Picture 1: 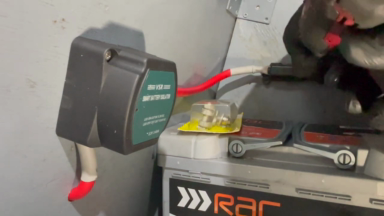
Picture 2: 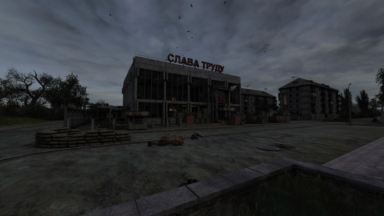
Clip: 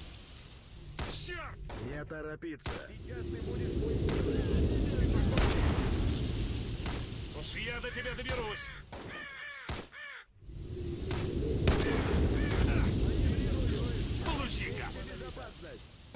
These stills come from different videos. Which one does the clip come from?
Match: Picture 2